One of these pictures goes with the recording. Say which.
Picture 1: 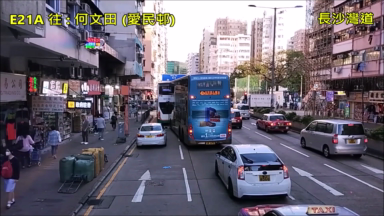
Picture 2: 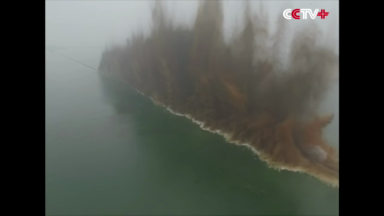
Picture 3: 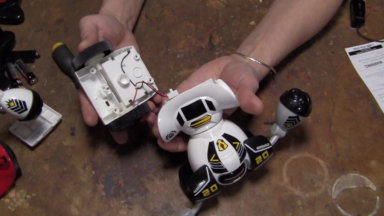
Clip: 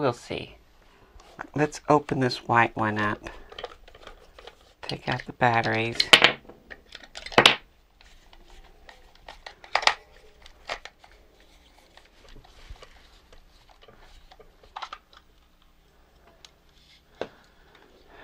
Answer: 3